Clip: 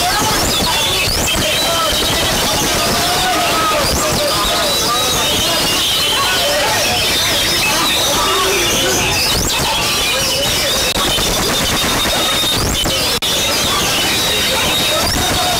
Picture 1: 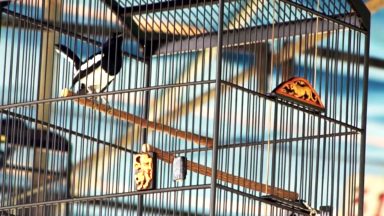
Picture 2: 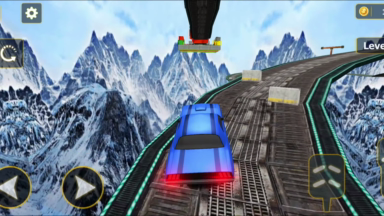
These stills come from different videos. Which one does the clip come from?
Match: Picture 1